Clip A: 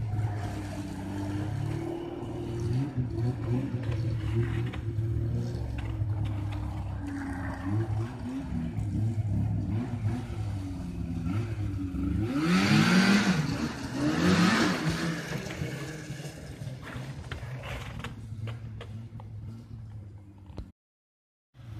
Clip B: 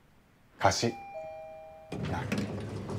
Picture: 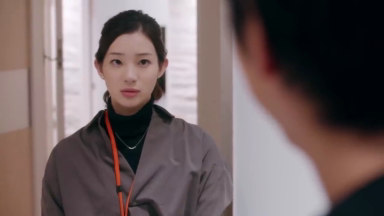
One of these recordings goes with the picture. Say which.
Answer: B